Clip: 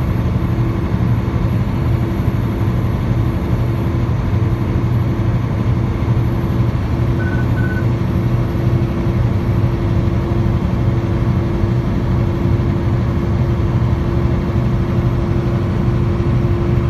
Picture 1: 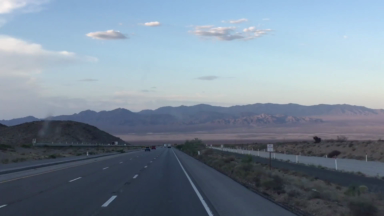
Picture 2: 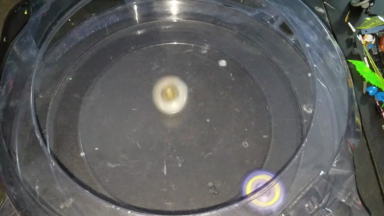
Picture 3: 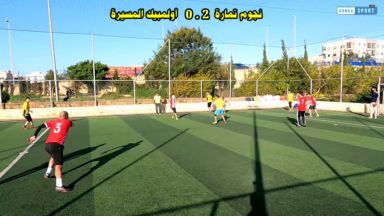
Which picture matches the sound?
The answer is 1